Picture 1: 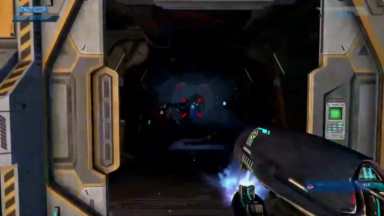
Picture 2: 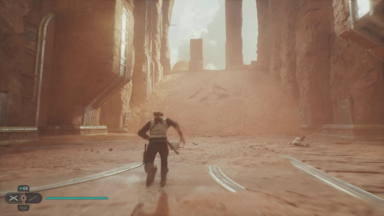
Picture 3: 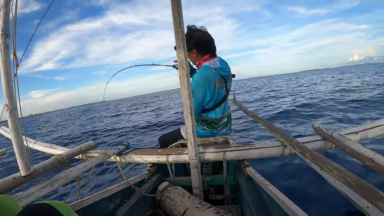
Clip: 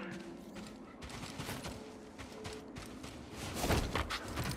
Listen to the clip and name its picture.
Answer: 2